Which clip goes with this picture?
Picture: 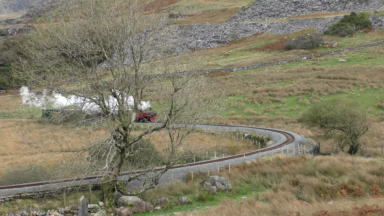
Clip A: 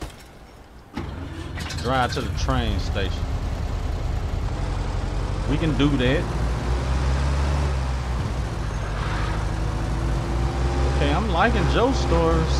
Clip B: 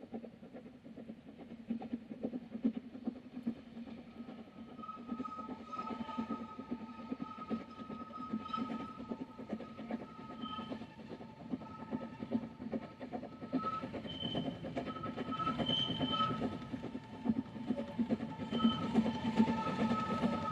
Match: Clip B